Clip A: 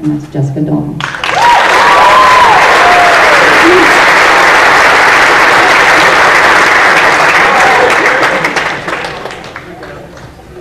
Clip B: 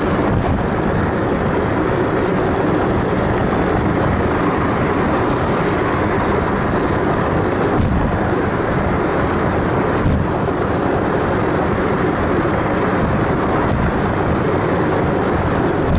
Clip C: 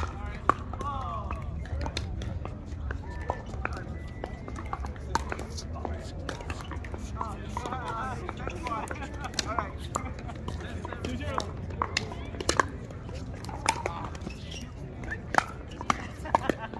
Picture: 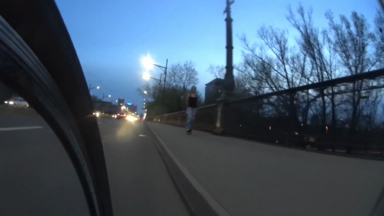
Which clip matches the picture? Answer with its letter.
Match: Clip B